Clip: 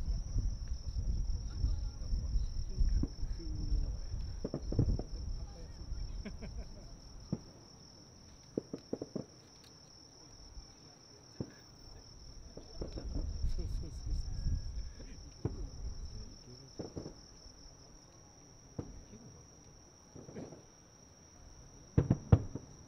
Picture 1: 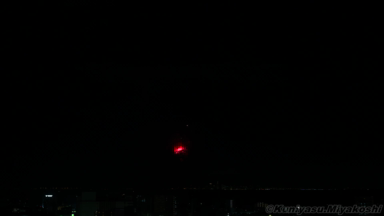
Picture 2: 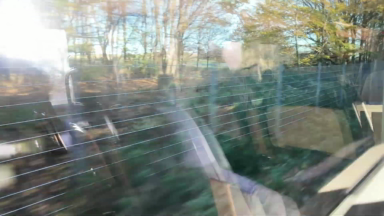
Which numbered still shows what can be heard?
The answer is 1